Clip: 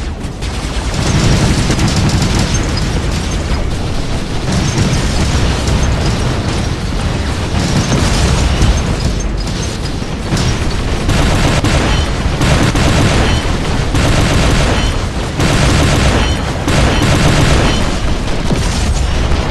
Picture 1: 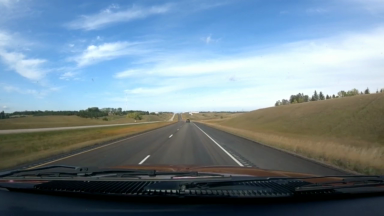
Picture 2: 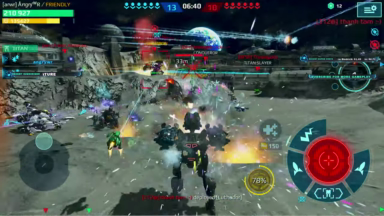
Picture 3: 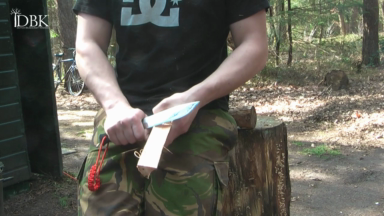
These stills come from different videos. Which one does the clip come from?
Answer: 2